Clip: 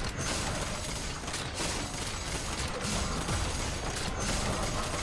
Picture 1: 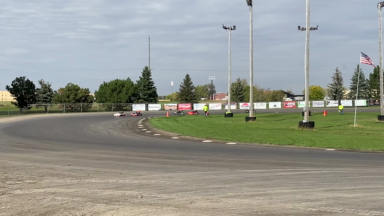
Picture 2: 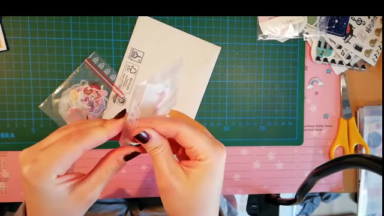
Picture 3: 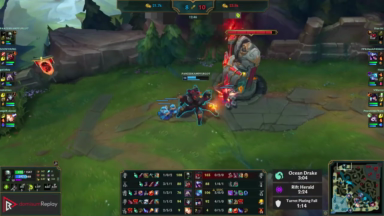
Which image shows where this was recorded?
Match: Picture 3